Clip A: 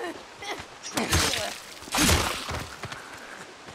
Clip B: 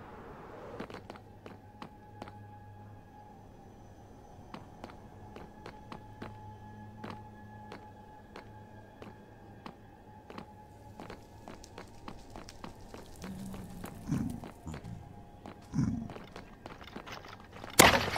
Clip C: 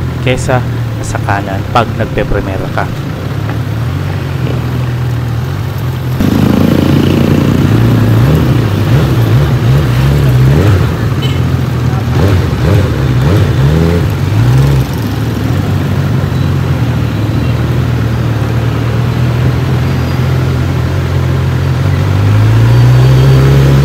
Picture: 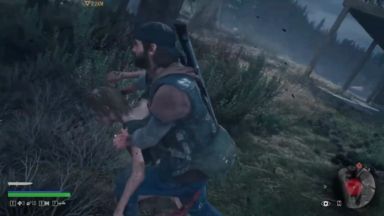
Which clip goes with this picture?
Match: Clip A